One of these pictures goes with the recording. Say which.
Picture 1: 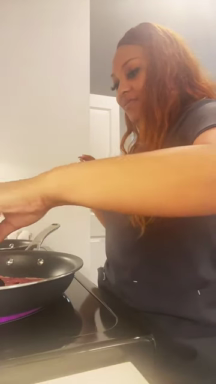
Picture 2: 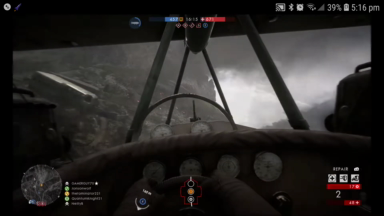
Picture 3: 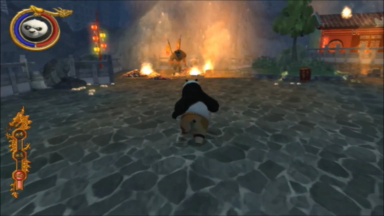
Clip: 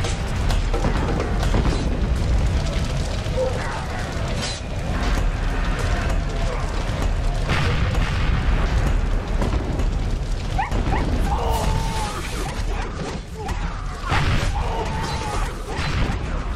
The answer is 3